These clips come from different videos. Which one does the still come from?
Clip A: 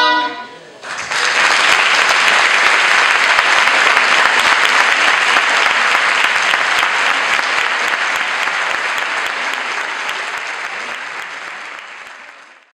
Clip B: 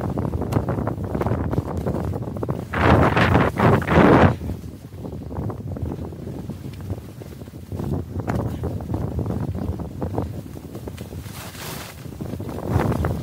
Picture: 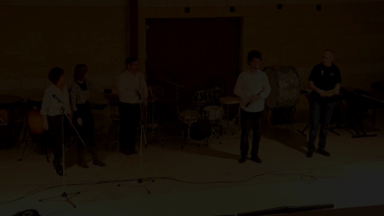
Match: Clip A